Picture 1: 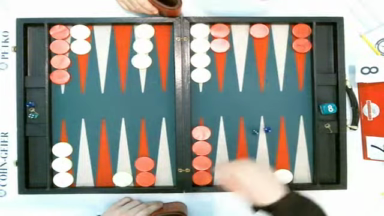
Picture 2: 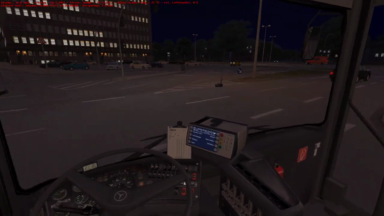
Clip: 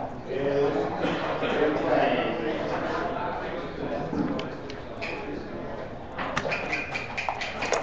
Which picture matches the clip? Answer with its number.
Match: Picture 1